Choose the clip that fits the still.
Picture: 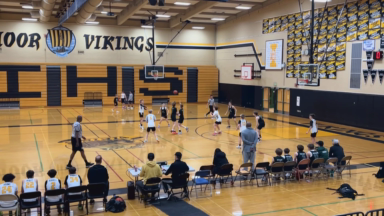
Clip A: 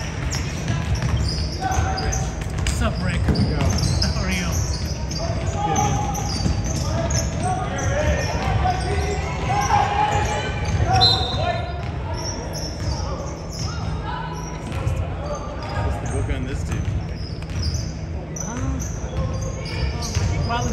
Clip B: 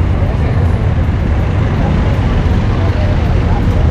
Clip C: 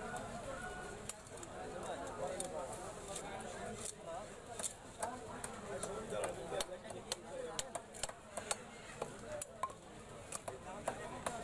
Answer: A